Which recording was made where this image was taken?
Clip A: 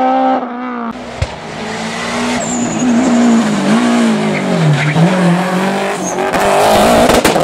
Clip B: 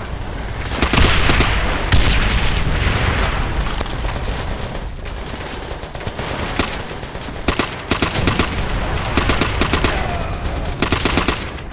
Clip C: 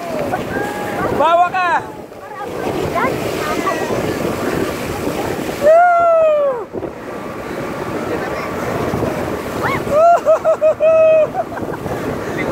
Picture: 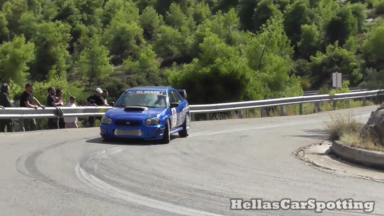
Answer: A